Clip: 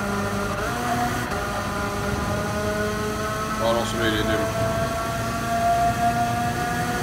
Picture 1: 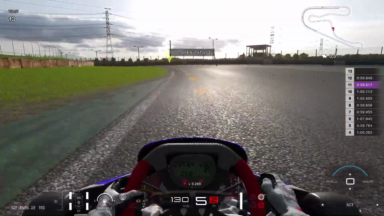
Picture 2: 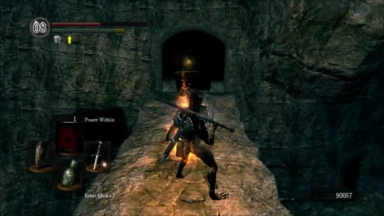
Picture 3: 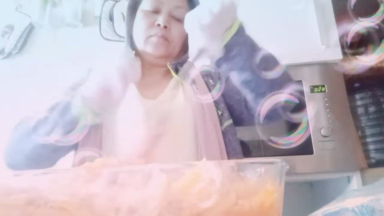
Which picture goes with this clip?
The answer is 1